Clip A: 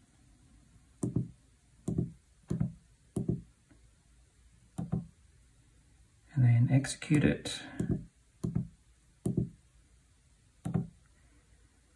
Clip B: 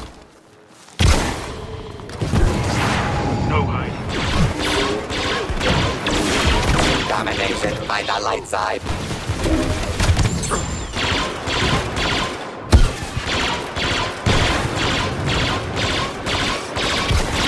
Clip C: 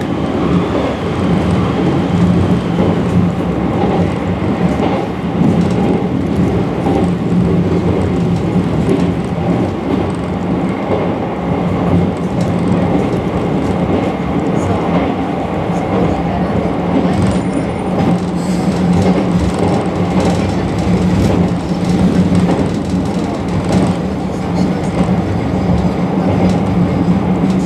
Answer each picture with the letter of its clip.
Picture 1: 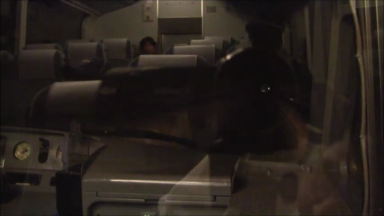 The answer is C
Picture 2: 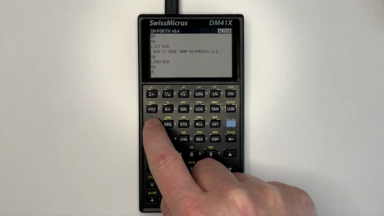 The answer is A